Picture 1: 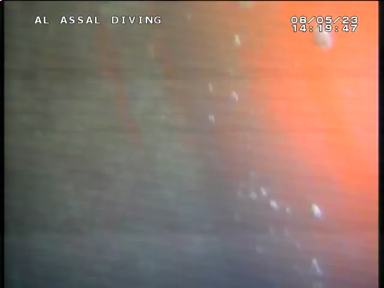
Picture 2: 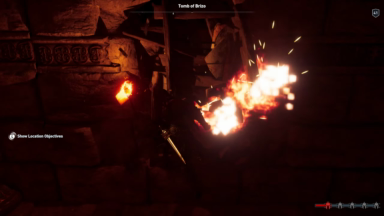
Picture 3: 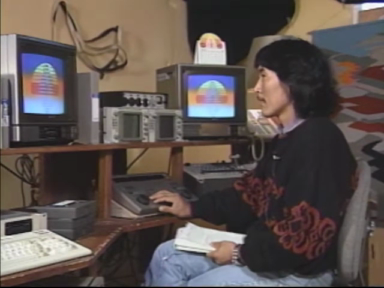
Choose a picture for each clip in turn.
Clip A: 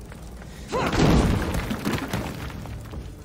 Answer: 2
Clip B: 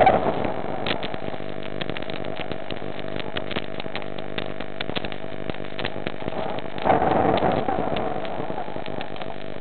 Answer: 1